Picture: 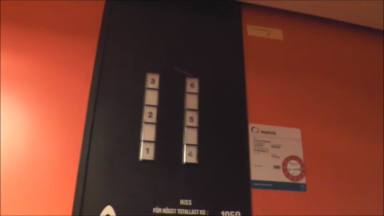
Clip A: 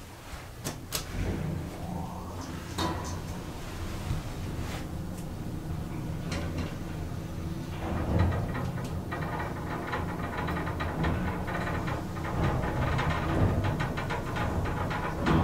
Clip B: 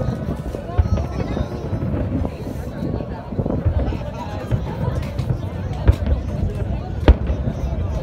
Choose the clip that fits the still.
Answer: A